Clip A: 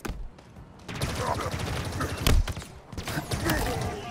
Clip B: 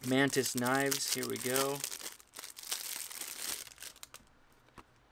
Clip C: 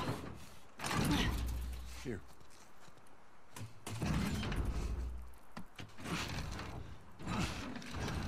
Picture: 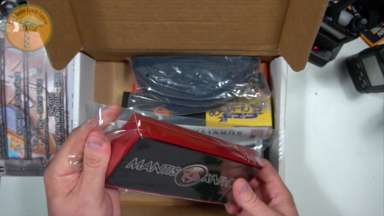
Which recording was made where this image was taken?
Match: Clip B